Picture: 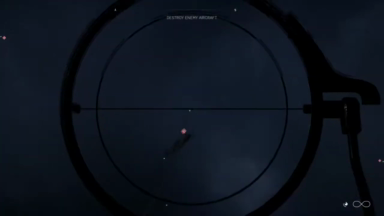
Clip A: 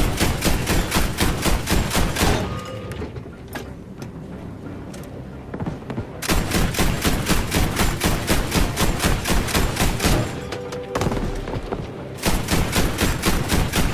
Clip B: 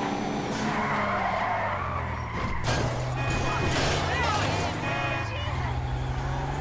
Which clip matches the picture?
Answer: A